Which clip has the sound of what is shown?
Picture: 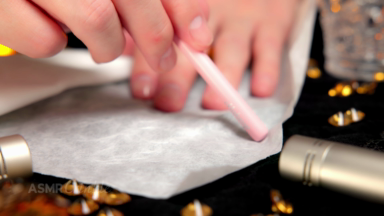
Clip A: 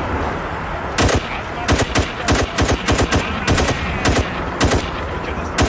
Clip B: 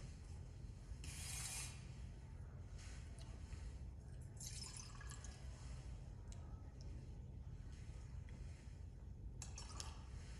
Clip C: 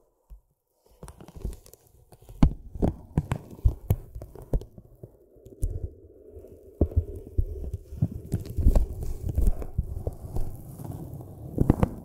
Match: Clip C